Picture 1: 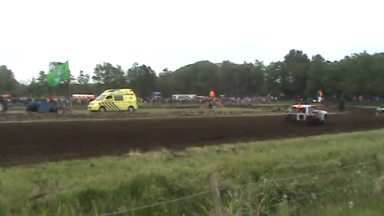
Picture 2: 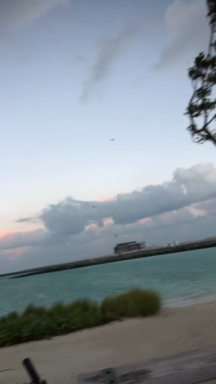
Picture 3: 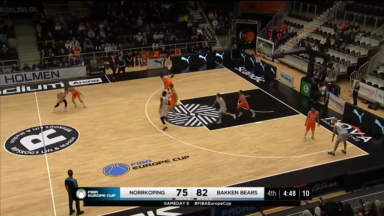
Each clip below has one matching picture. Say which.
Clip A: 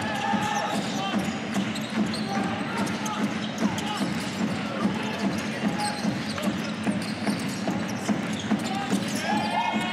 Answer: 3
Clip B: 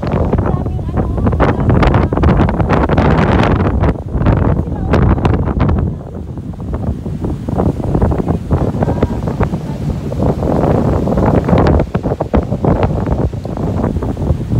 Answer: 2